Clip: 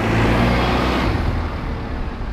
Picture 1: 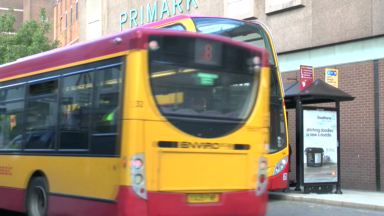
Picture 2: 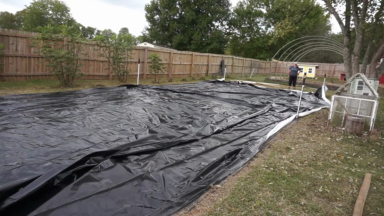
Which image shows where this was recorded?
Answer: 1